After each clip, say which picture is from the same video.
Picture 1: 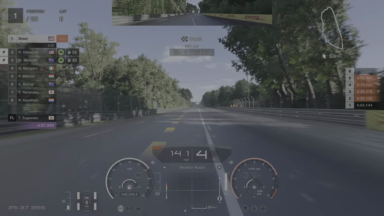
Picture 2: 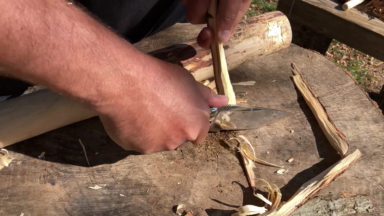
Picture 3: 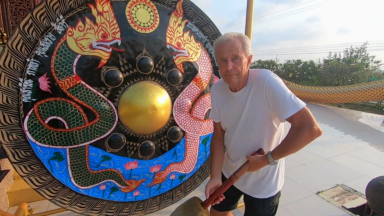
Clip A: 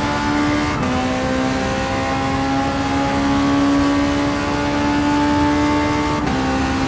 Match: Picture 1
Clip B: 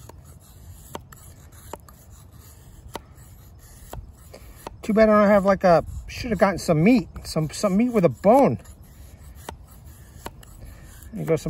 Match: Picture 2